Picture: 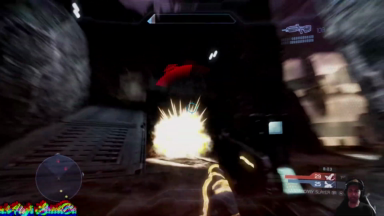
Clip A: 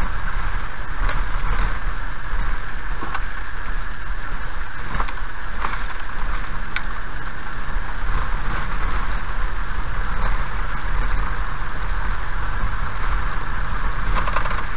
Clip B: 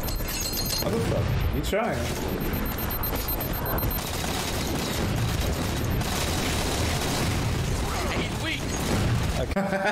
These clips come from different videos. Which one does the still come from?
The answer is B